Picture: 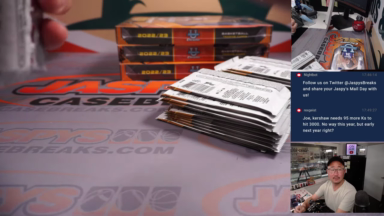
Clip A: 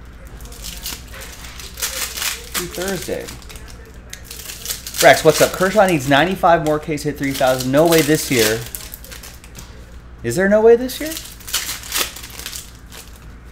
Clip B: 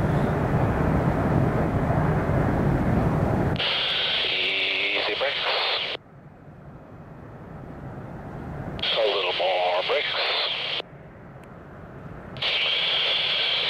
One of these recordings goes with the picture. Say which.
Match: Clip A